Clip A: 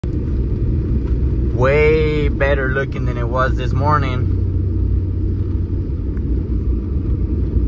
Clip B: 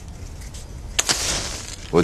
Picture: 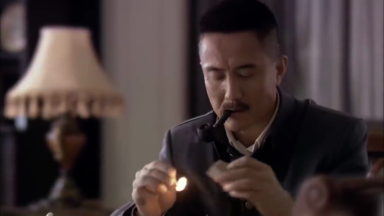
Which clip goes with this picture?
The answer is B